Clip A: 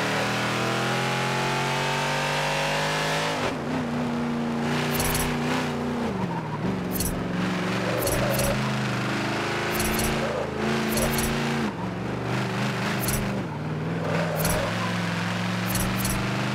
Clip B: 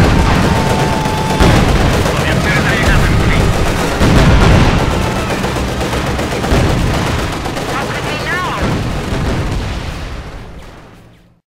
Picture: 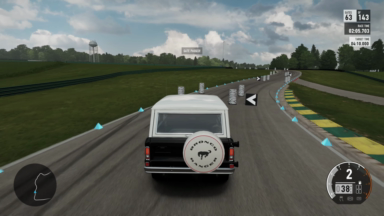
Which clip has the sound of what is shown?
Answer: A